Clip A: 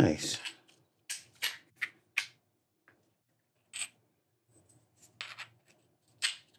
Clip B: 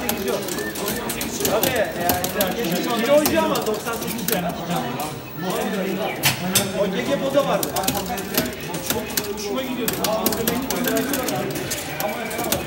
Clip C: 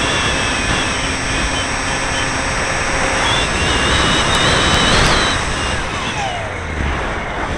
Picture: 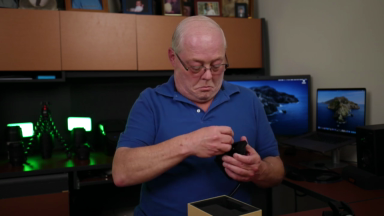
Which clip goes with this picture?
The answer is A